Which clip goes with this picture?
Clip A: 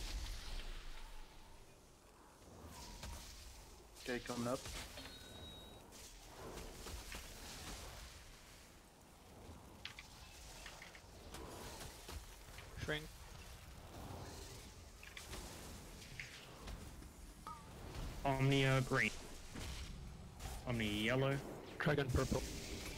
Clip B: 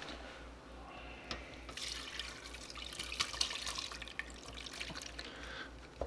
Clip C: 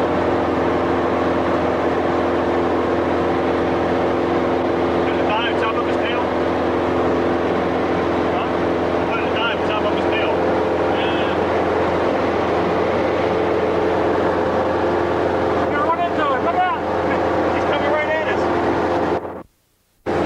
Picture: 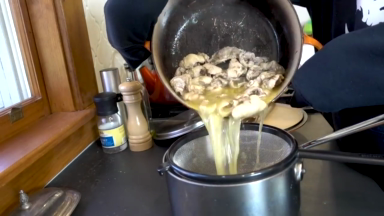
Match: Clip B